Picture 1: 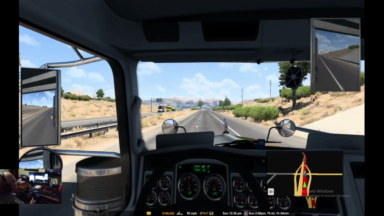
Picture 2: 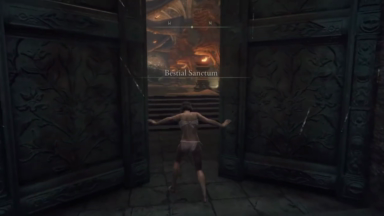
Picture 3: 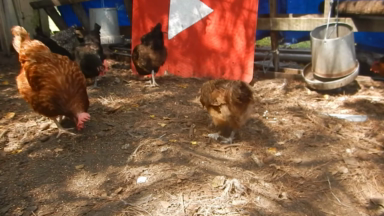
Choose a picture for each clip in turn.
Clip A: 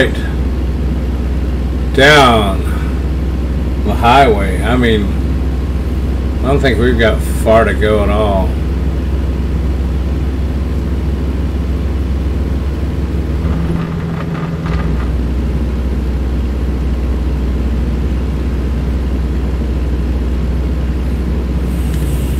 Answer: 1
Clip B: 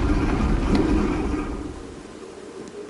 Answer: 2